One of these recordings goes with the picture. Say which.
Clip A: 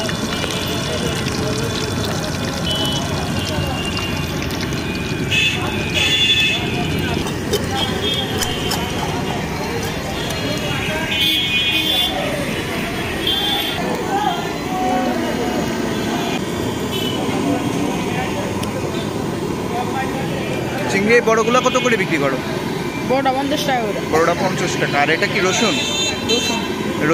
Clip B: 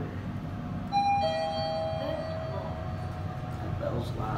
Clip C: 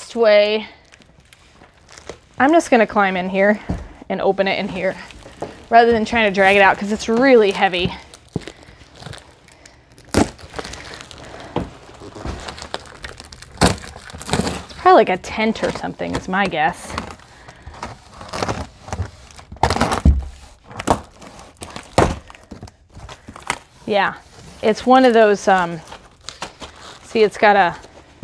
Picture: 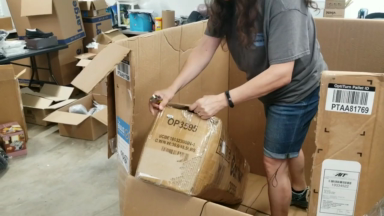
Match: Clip C